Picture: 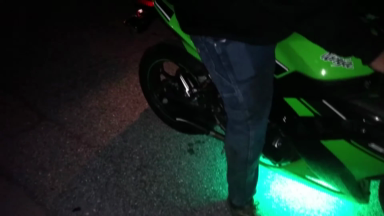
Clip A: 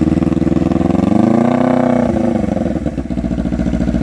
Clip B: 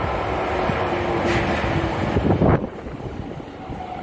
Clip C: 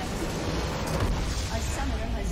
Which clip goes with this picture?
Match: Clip A